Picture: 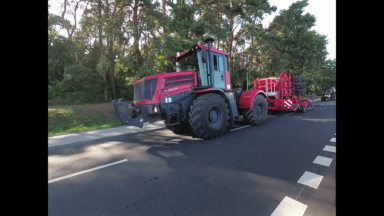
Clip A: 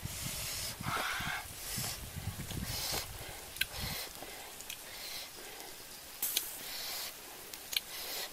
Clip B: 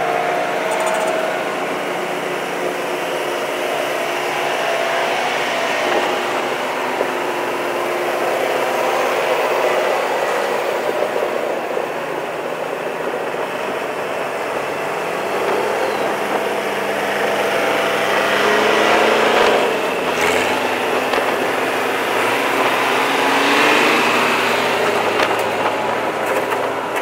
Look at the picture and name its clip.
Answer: B